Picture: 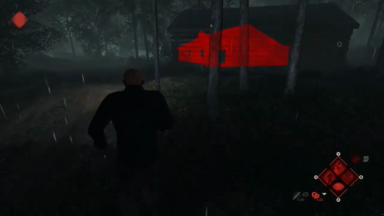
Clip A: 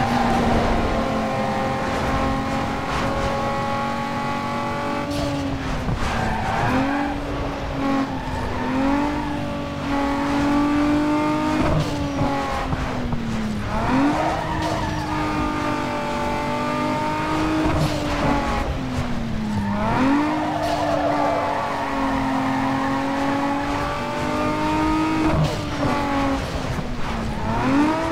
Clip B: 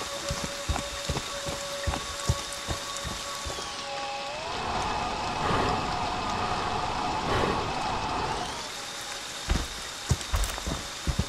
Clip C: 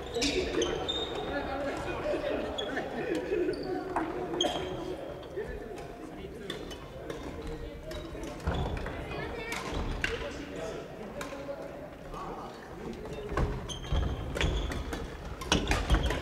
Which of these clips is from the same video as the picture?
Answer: B